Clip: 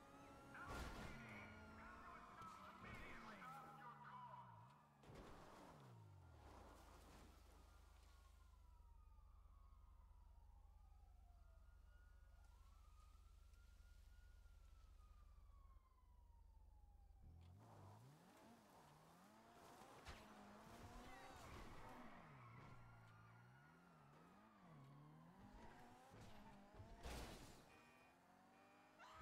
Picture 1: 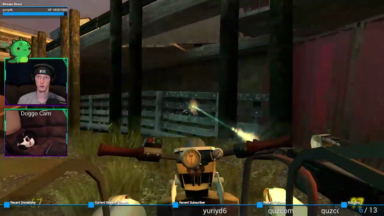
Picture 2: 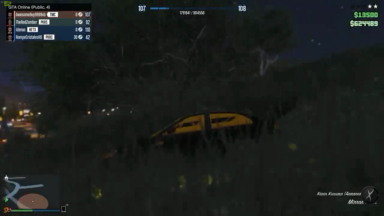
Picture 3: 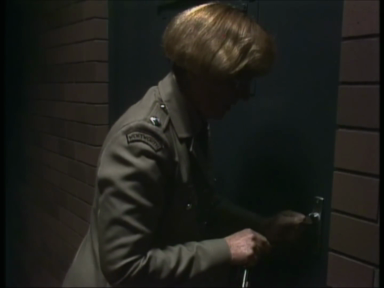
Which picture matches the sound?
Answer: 2